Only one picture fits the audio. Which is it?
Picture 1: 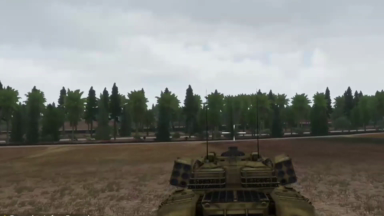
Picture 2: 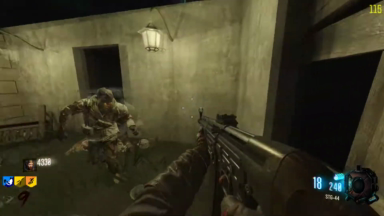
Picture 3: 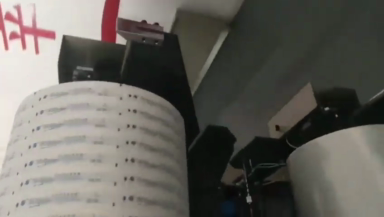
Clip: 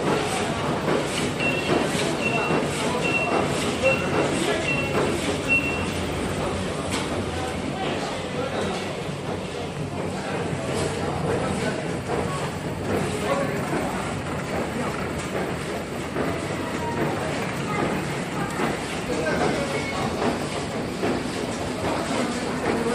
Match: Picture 3